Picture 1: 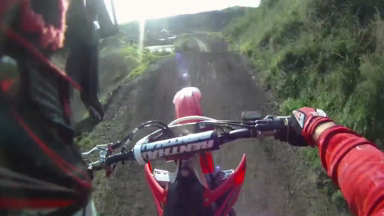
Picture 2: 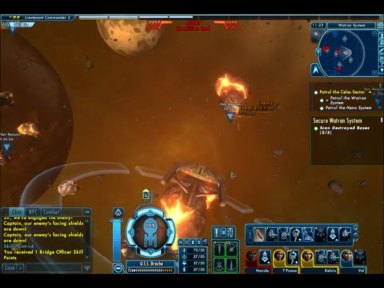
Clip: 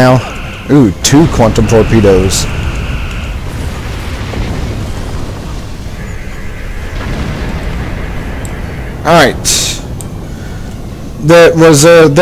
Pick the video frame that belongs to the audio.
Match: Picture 2